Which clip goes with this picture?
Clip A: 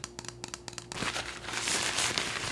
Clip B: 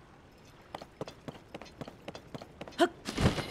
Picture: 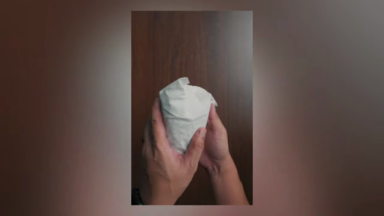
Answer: A